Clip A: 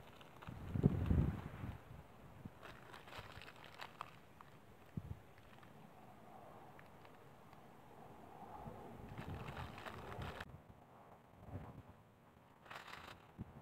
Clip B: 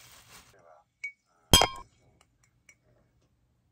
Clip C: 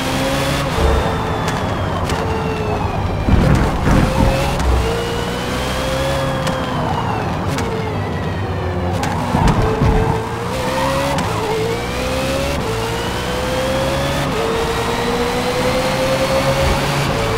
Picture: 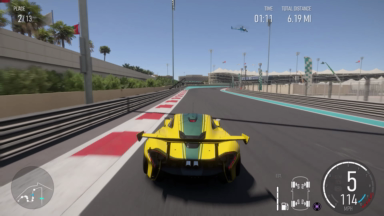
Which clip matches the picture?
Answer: C